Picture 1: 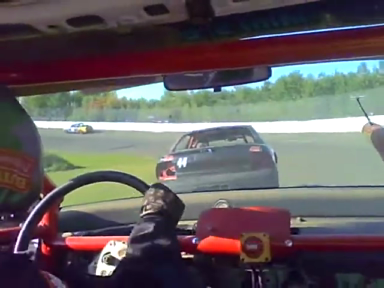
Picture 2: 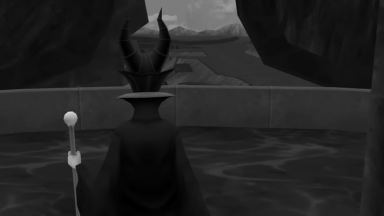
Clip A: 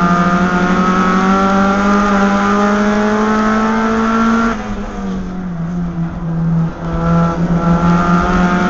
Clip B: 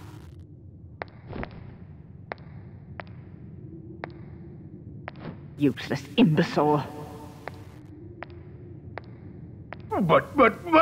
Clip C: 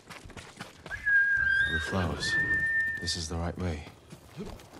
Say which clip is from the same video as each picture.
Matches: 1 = A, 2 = B